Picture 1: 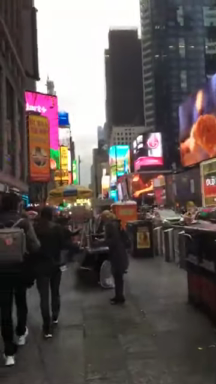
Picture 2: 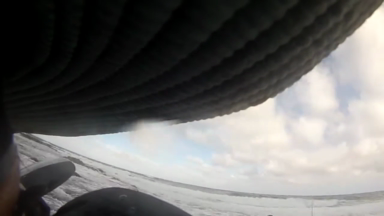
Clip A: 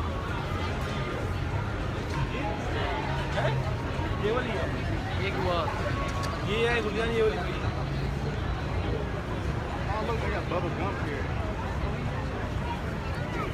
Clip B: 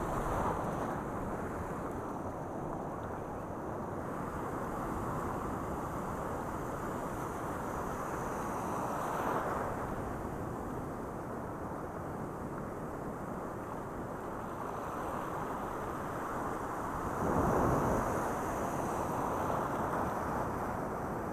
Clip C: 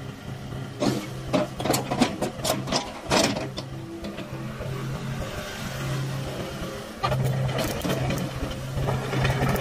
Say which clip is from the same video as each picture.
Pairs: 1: A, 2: B